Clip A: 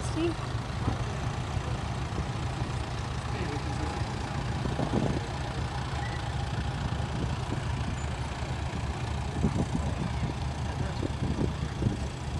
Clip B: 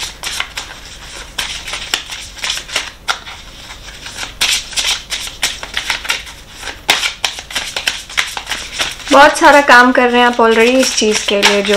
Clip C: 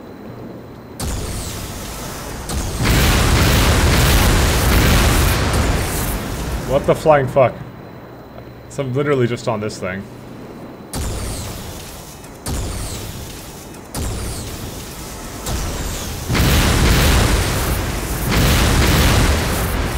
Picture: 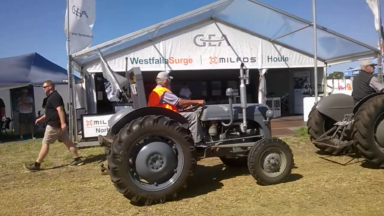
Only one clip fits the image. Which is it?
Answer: A